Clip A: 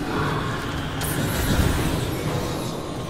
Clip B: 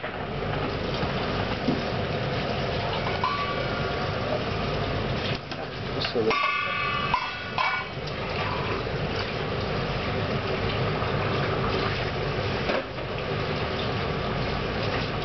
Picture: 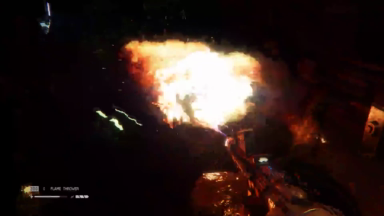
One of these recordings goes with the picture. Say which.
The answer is A